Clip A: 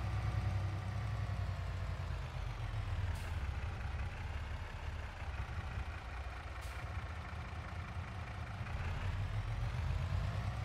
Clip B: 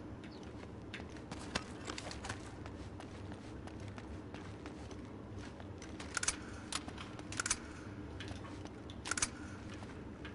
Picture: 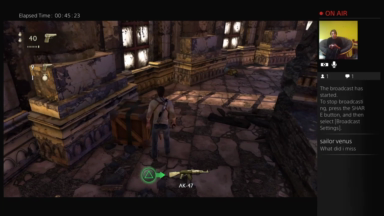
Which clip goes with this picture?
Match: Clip B